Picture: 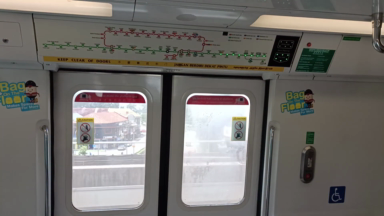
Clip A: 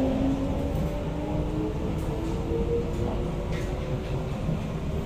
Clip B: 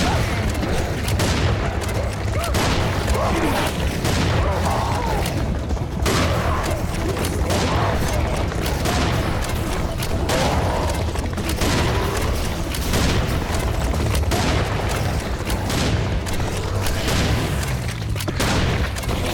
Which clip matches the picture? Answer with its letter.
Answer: A